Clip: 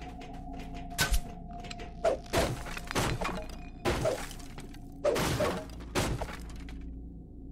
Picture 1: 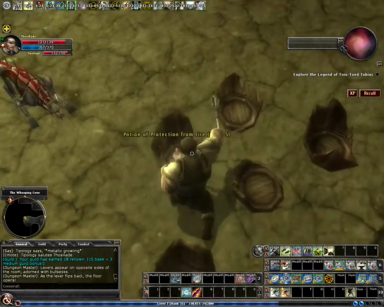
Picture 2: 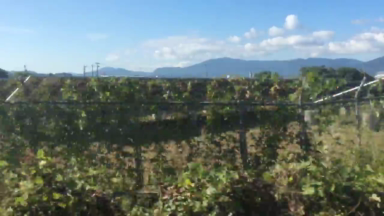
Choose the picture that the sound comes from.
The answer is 1